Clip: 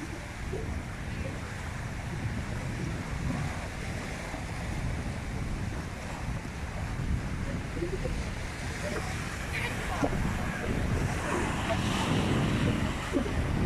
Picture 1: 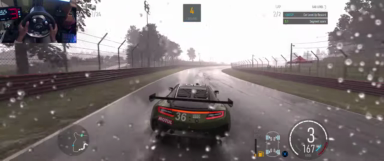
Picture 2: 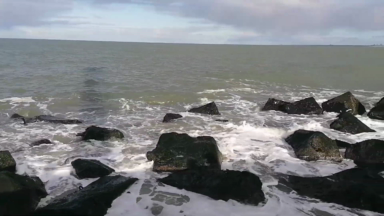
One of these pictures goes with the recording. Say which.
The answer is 2